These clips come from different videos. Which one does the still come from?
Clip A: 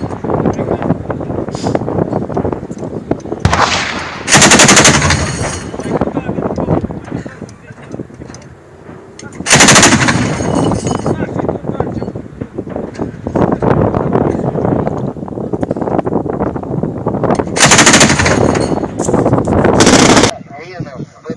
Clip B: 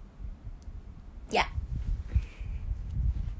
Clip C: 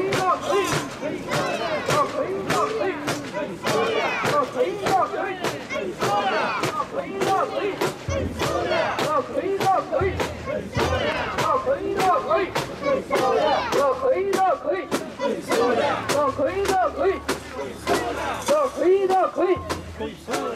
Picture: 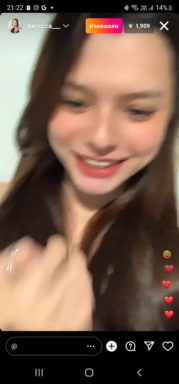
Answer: B